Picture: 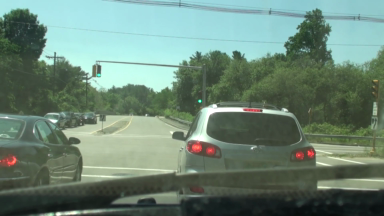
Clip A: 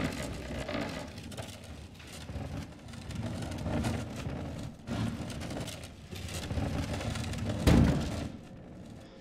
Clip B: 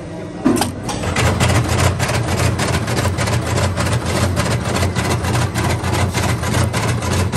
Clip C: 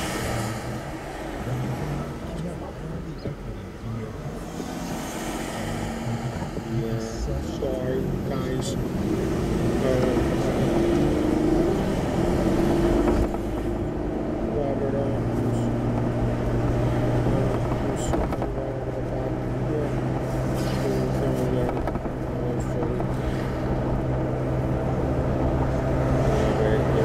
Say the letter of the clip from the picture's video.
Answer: C